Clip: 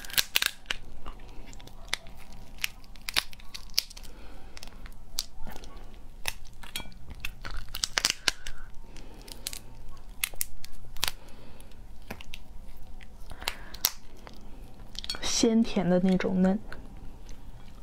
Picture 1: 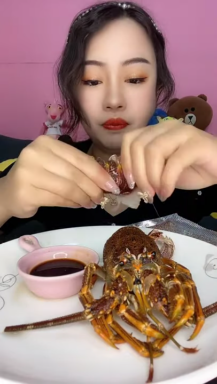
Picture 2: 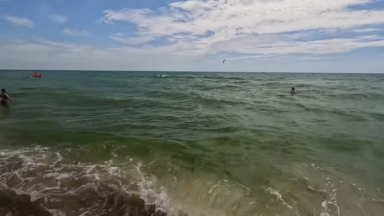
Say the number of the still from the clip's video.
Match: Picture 1